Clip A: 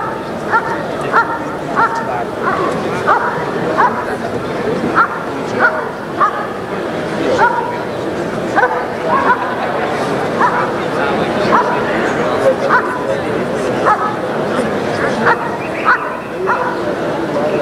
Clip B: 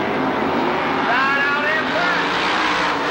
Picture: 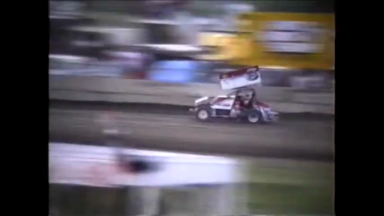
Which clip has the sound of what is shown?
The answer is B